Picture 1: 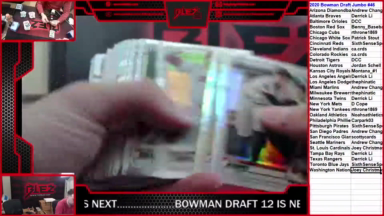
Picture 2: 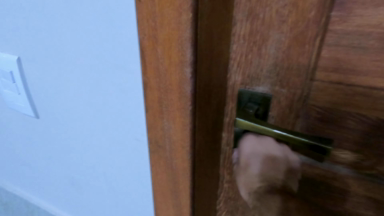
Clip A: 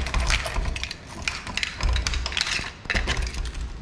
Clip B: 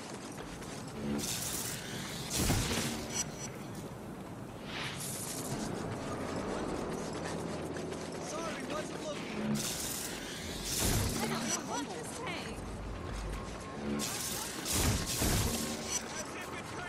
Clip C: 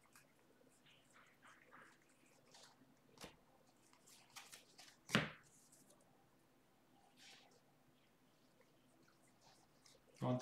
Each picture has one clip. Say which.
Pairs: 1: C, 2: A